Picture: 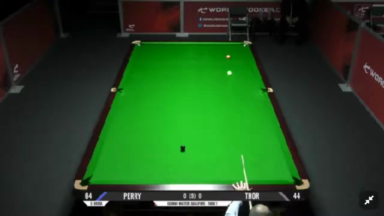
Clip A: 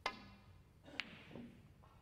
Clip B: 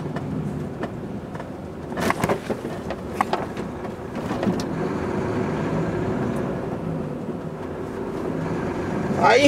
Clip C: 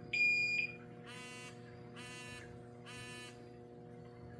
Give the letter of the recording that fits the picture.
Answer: A